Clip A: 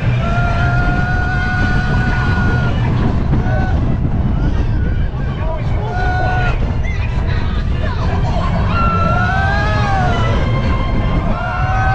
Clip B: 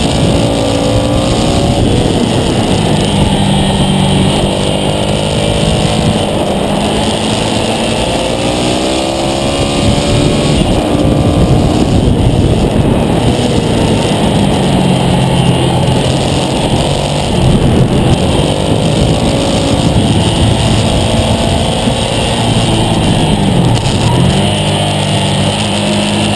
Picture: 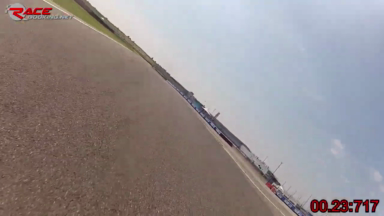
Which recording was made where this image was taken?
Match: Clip B